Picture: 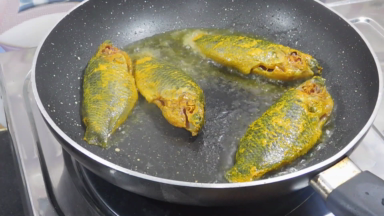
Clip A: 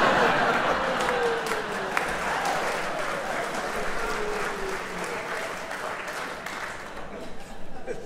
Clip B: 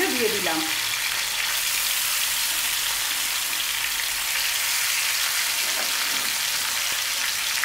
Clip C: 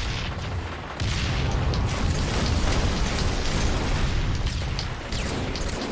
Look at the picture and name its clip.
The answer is B